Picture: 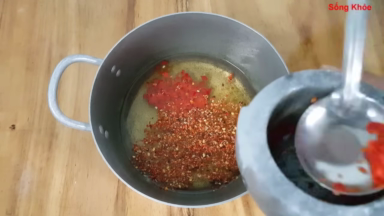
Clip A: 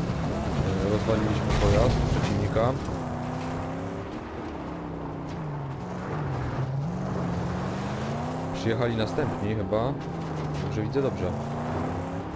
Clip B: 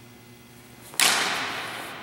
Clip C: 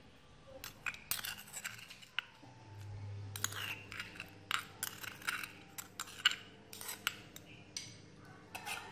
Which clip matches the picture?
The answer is C